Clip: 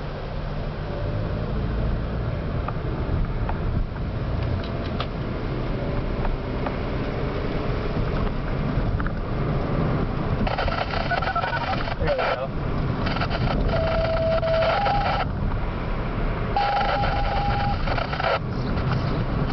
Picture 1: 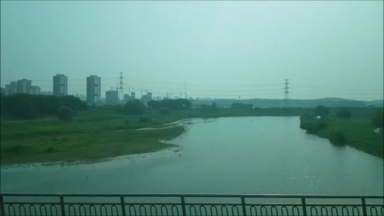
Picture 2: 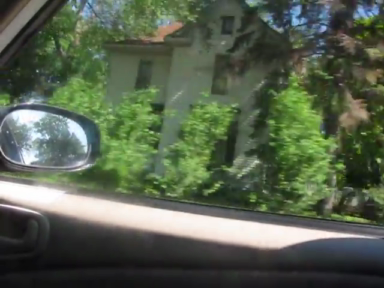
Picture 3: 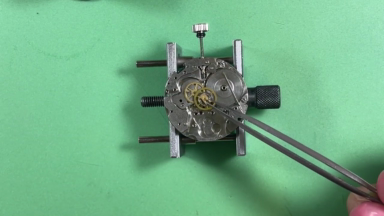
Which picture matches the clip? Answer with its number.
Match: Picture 2